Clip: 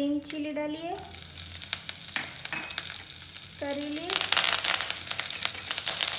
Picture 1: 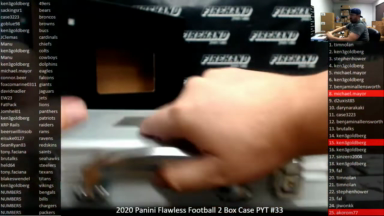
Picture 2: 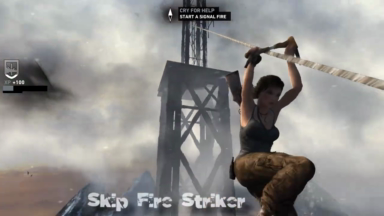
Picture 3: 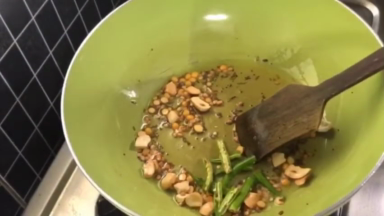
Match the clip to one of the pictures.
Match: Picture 3